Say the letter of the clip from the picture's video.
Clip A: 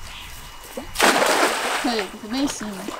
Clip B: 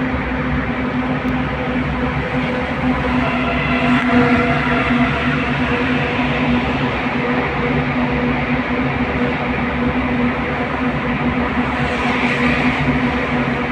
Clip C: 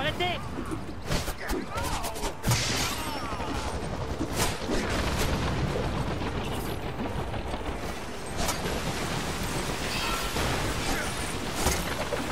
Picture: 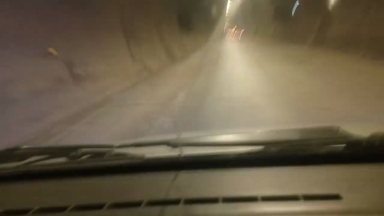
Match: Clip B